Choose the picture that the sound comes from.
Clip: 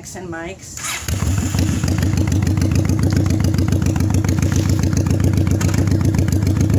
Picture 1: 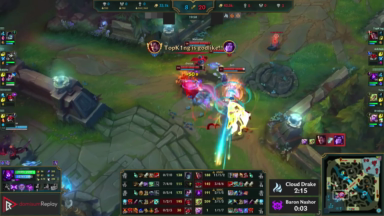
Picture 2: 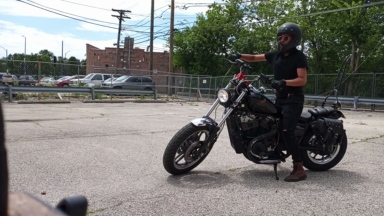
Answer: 2